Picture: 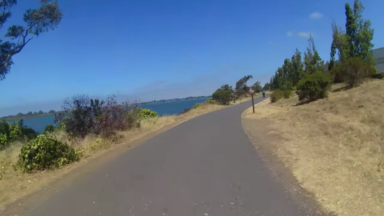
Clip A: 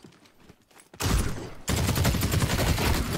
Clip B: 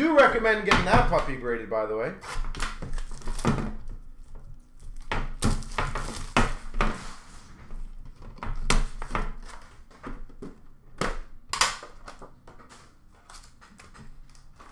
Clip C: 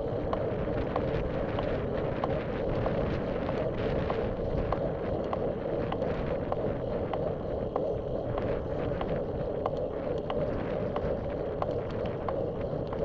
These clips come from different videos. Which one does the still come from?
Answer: C